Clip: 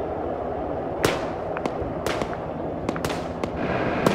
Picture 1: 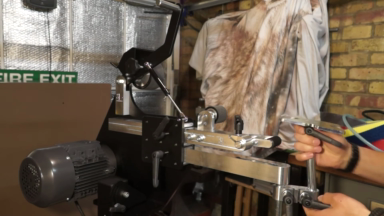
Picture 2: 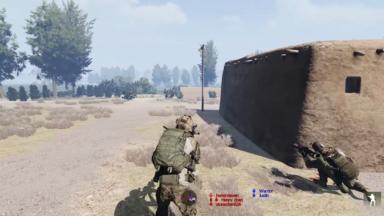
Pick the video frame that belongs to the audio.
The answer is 2